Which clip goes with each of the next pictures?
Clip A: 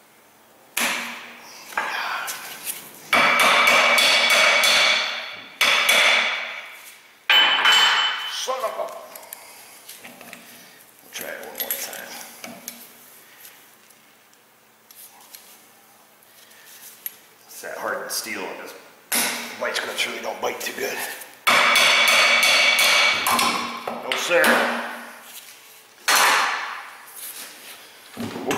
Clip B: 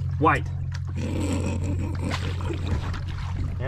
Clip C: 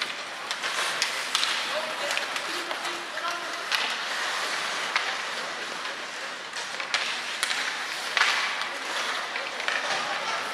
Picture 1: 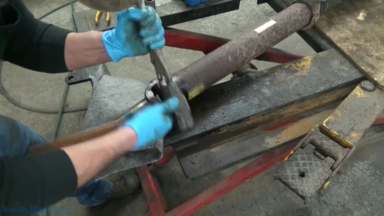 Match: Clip A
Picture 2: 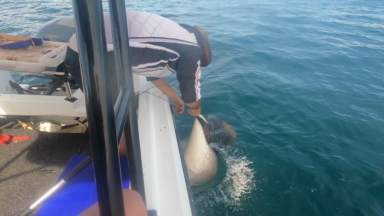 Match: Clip B